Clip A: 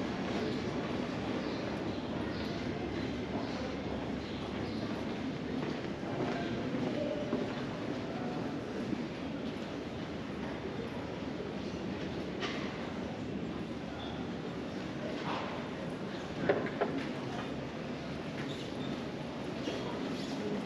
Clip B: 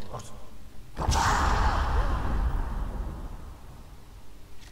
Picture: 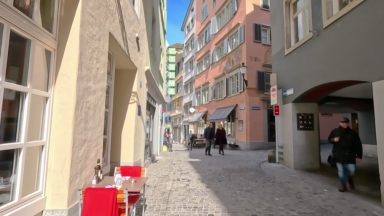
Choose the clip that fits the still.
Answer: A